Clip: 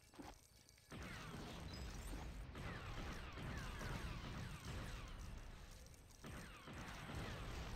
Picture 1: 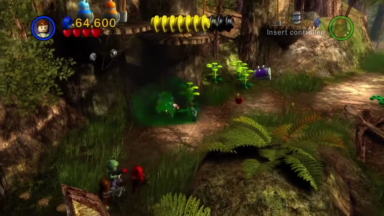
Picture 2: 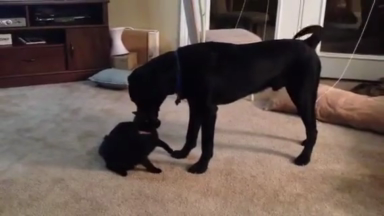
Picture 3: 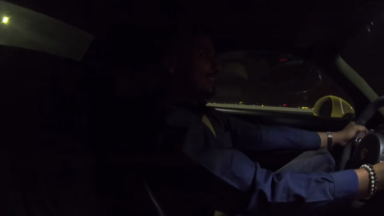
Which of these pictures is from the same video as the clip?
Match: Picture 1